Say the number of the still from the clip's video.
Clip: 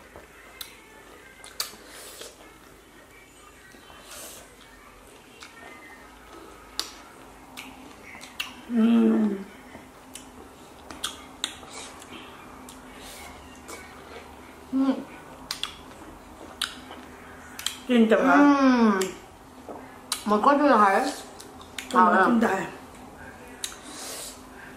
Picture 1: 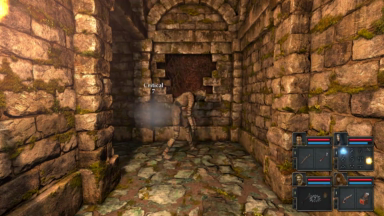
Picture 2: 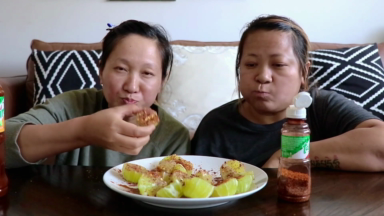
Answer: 2